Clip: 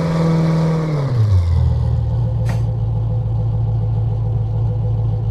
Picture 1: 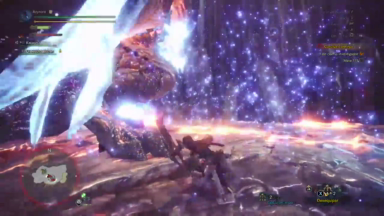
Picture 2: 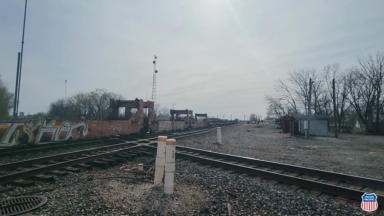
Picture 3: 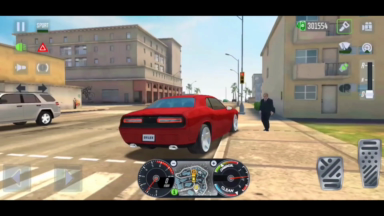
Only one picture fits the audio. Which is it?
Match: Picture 3